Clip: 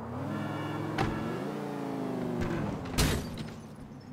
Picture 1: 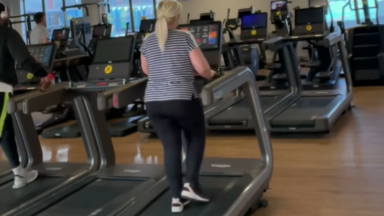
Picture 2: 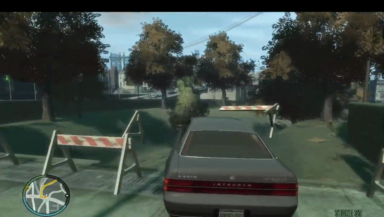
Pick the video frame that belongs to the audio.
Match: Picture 2